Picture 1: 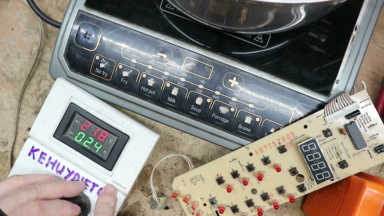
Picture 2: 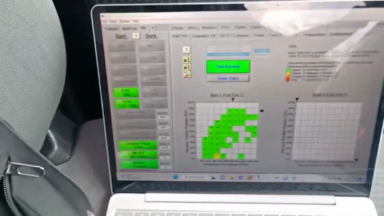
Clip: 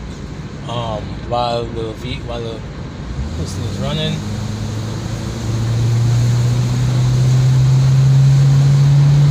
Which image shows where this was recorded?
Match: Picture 2